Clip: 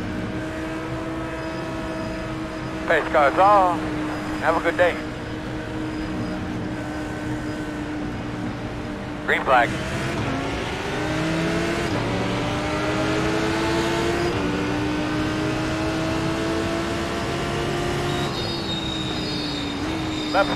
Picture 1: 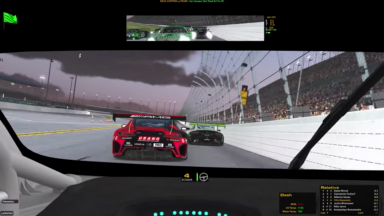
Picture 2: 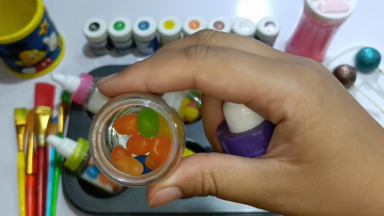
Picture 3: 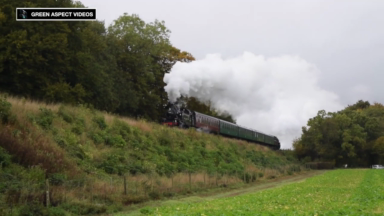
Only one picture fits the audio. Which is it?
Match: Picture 1